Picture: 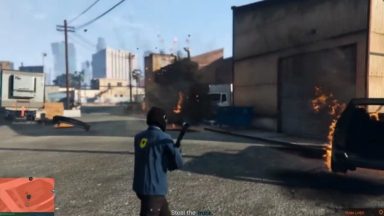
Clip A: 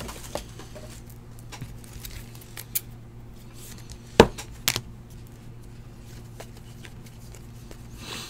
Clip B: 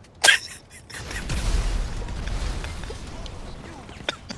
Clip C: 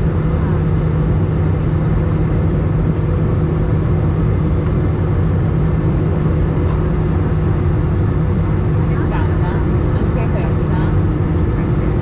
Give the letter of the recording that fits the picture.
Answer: B